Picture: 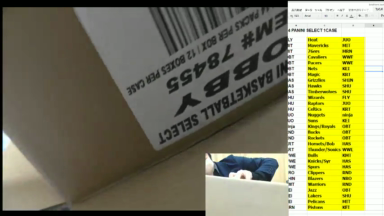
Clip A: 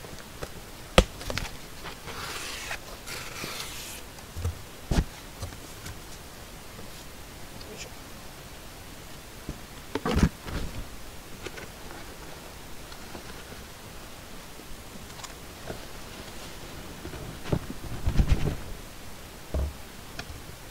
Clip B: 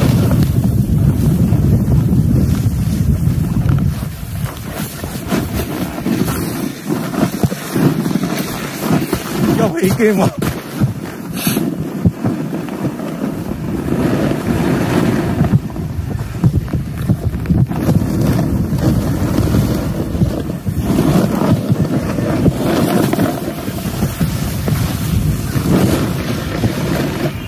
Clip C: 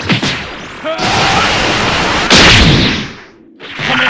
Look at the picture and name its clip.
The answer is A